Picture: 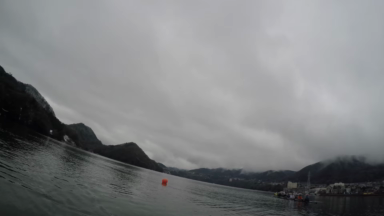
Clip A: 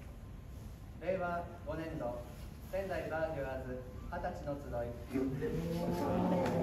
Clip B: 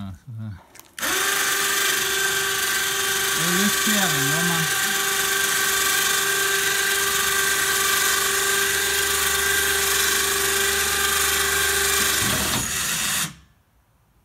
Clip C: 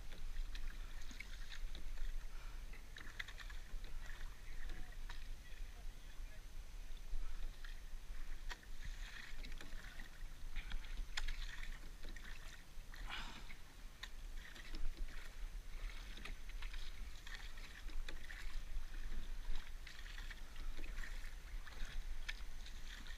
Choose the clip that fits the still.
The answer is C